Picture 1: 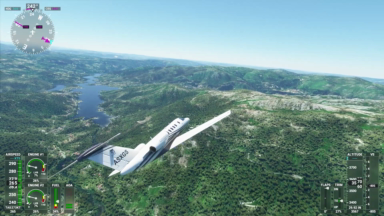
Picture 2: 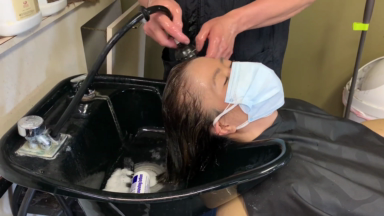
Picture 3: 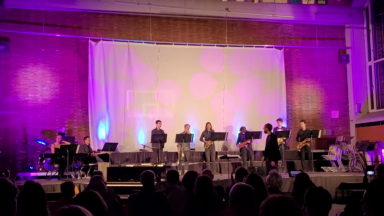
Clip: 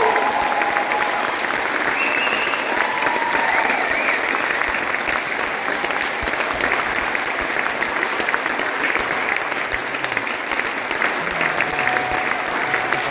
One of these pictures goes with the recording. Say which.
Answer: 3